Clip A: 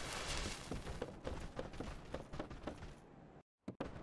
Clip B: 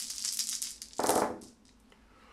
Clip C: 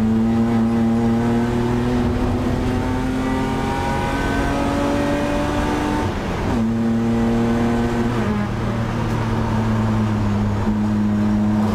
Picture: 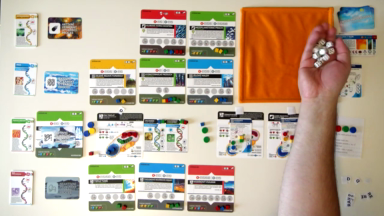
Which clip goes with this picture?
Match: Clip B